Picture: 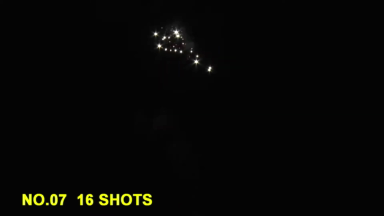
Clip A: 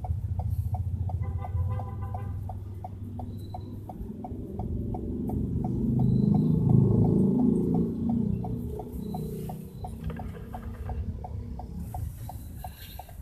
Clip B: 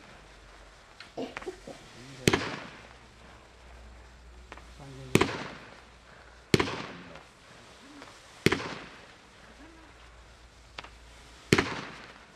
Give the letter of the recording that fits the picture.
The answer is B